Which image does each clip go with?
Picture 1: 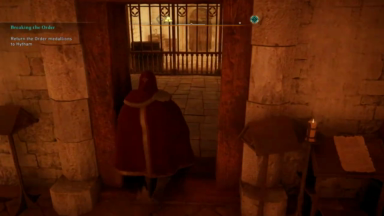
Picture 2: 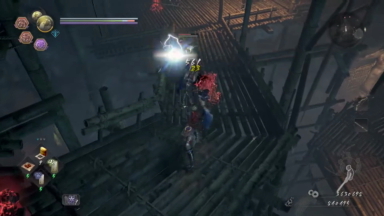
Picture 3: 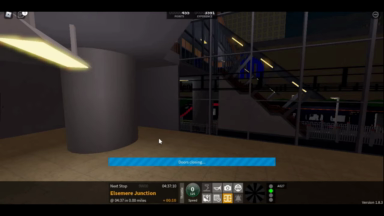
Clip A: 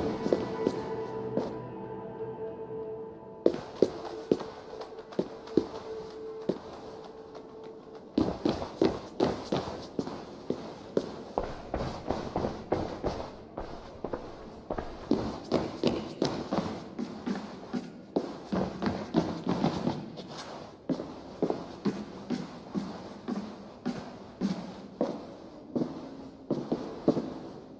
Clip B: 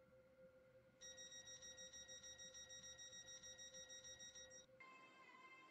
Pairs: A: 1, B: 3